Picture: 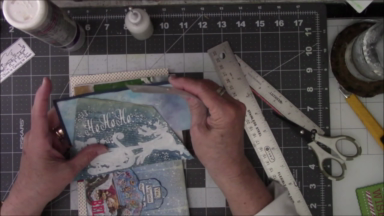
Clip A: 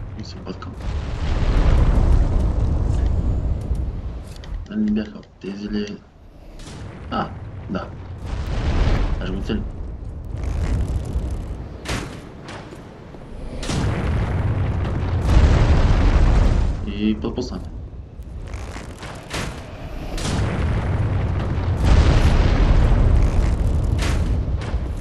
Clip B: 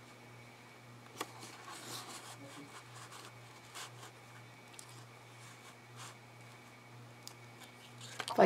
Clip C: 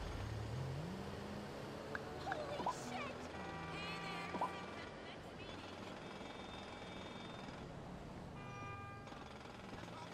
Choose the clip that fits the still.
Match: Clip B